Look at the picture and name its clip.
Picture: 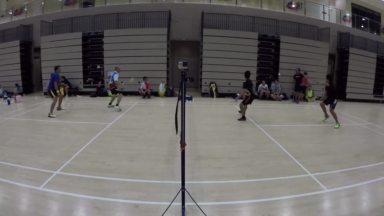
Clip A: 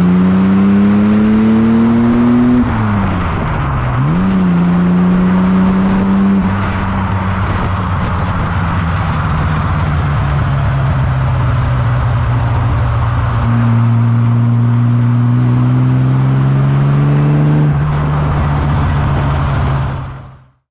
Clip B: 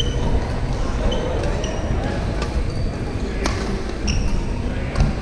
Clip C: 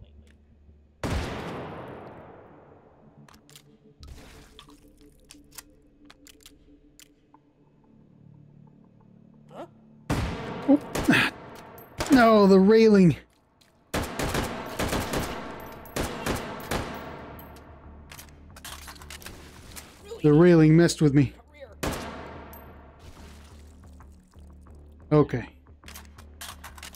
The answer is B